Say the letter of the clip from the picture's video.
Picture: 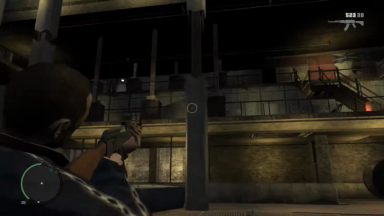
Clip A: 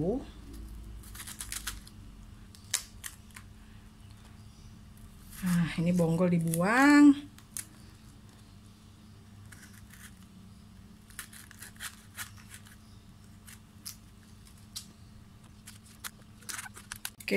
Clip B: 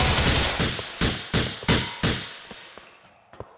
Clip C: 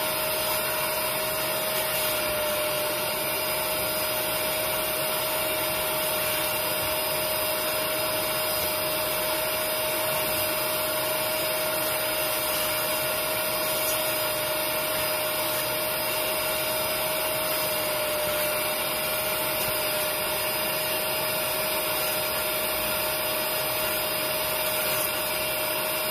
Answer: B